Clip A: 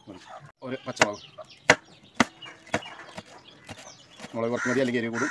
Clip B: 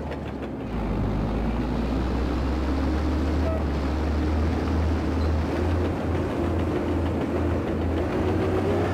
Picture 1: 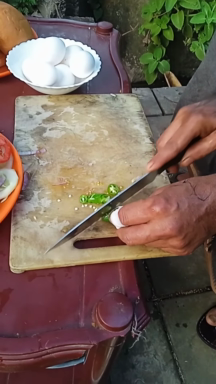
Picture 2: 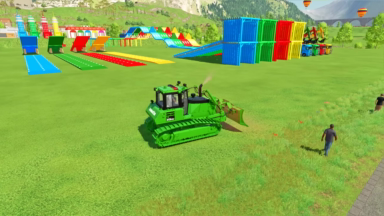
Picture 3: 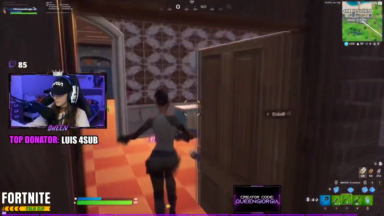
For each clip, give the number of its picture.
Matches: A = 1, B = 2